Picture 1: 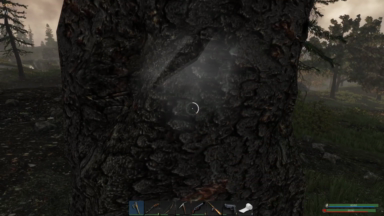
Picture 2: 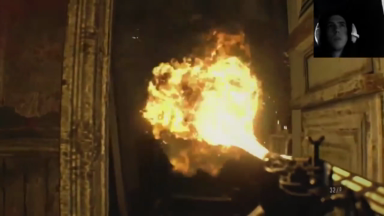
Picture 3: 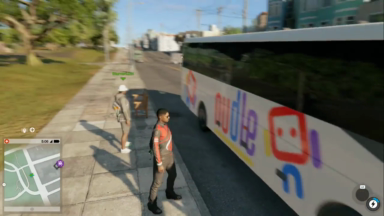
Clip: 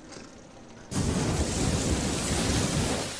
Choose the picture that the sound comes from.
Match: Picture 2